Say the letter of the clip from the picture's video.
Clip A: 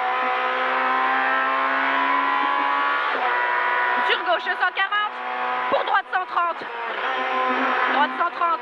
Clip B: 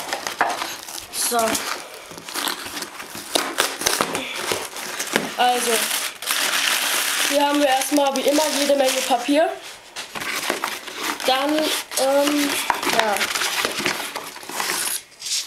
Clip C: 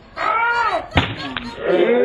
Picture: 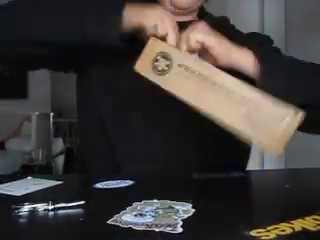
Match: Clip B